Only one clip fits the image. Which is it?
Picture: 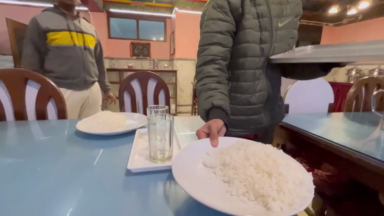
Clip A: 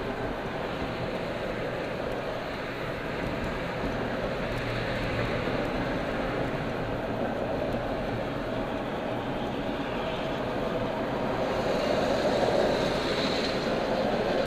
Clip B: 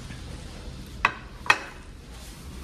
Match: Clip B